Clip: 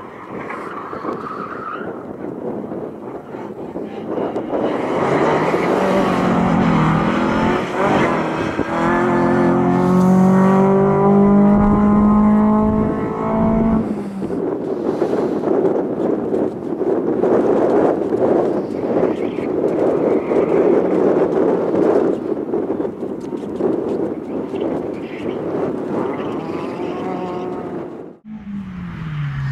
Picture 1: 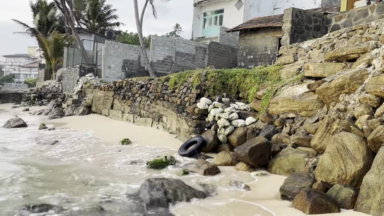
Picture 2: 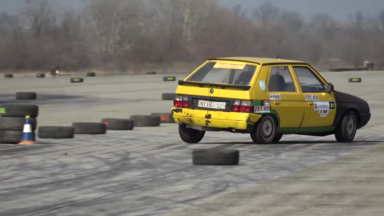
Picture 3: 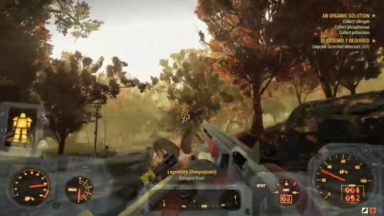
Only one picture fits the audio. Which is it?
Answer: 2